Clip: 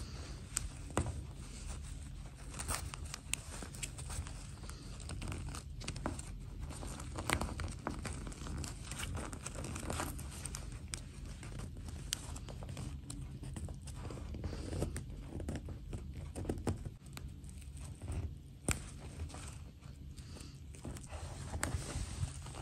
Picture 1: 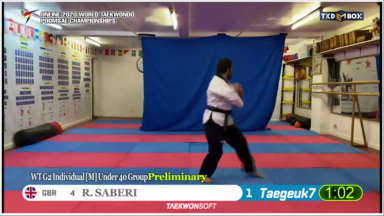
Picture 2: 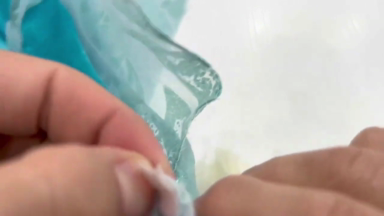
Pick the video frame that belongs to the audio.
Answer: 2